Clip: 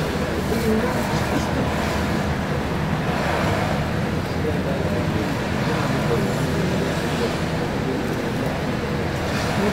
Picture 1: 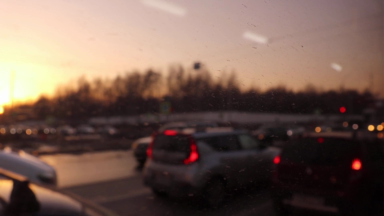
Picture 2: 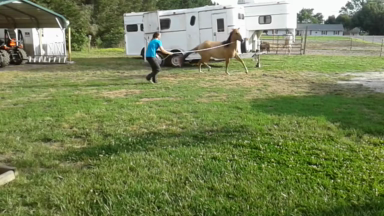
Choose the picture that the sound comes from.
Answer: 1